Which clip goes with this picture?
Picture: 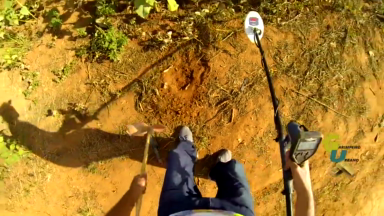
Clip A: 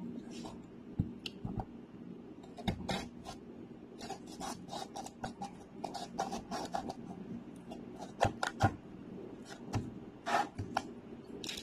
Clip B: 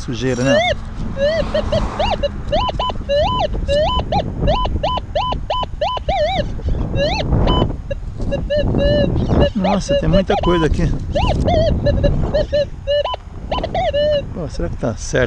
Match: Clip B